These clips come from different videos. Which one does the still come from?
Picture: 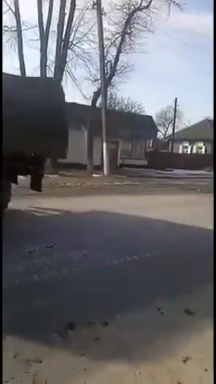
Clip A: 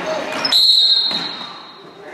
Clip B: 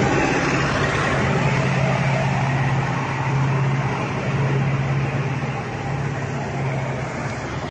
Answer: B